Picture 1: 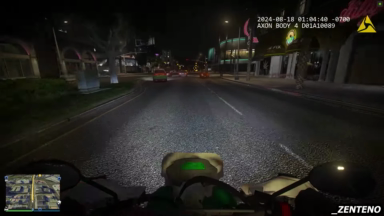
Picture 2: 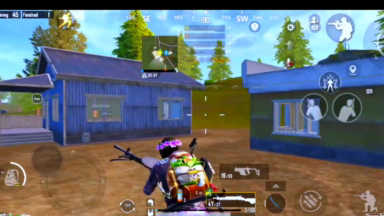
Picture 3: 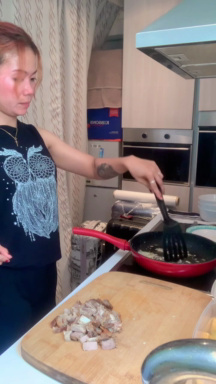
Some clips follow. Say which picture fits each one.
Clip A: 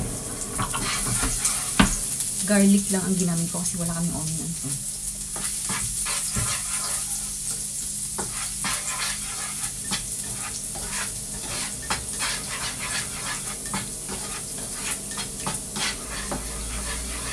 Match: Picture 3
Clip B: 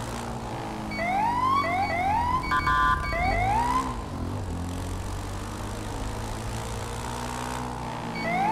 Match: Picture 1